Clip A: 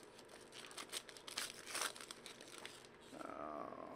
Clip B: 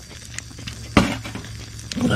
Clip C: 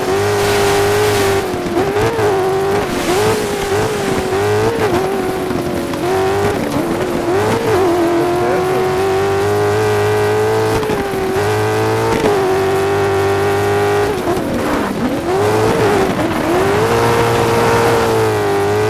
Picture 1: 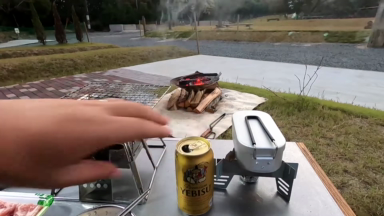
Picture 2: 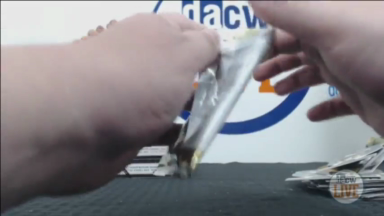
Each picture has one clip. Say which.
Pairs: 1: B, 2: A